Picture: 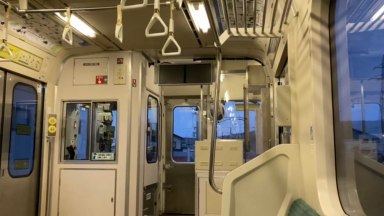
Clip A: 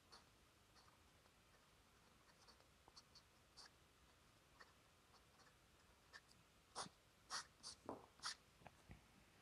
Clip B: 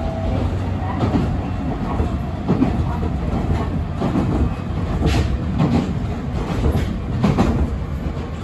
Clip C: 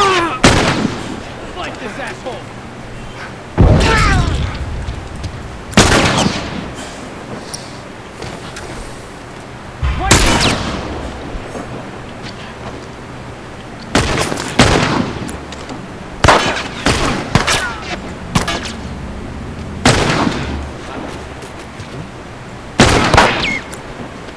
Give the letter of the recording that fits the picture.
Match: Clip B